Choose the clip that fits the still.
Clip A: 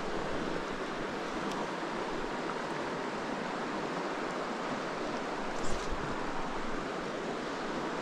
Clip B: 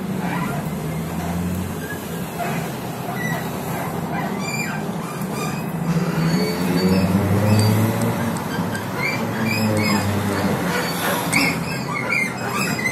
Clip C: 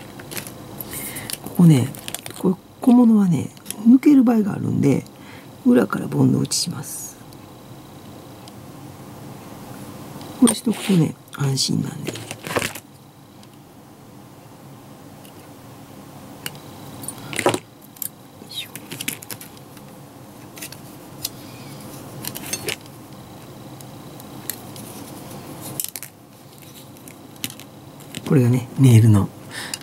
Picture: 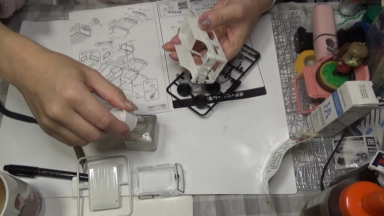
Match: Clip C